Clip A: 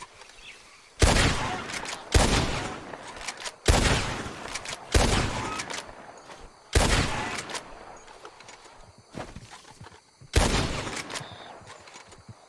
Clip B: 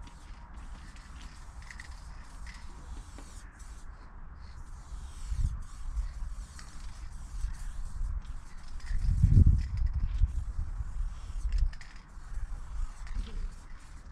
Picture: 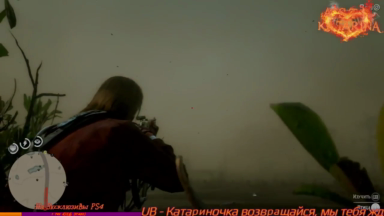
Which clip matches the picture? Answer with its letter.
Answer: A